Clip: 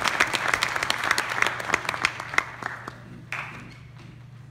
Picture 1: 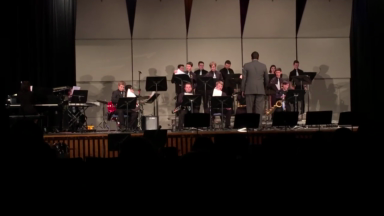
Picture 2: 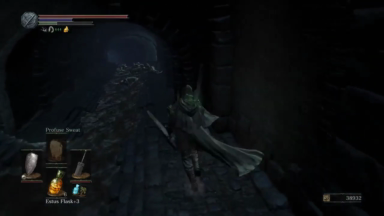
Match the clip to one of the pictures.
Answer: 1